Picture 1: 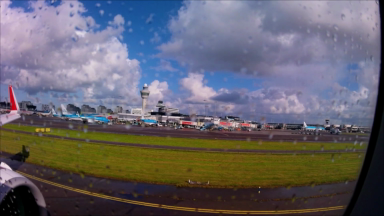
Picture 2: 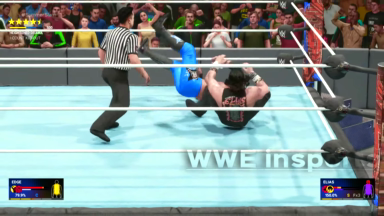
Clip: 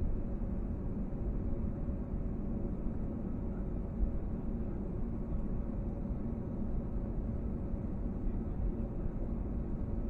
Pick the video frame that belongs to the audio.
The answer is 1